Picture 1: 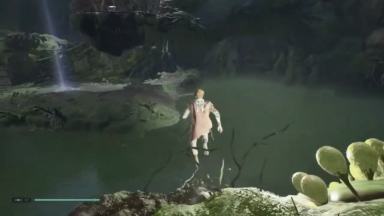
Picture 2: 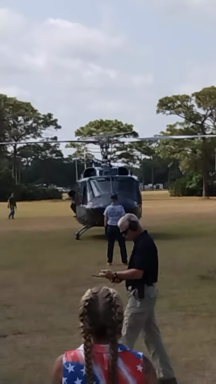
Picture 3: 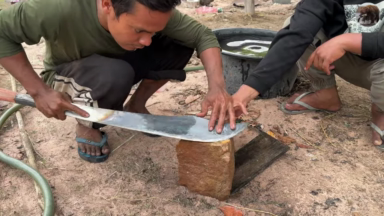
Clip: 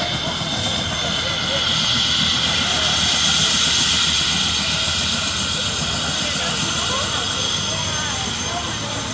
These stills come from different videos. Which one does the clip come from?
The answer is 2